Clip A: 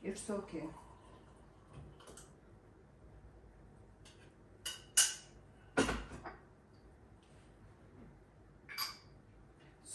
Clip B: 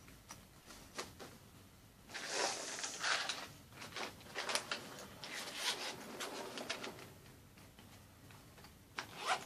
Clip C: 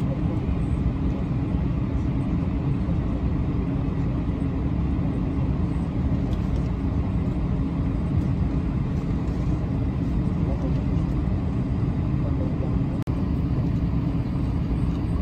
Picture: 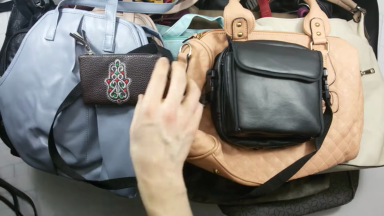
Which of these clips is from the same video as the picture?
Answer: B